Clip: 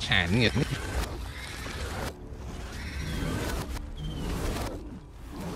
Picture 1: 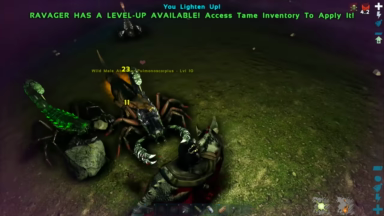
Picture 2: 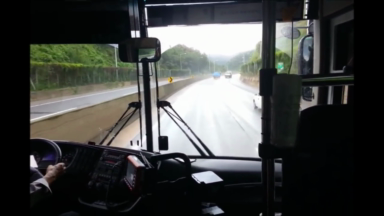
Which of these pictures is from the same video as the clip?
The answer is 1